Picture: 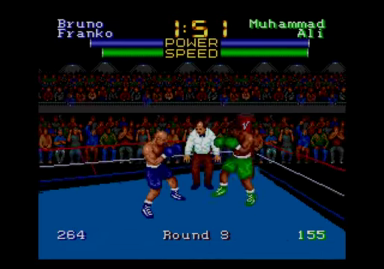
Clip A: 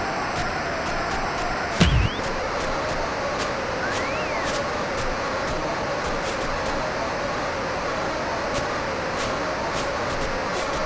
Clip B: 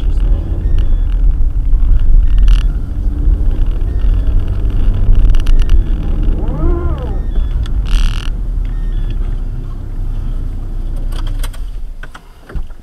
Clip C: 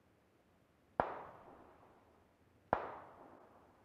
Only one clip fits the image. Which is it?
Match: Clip A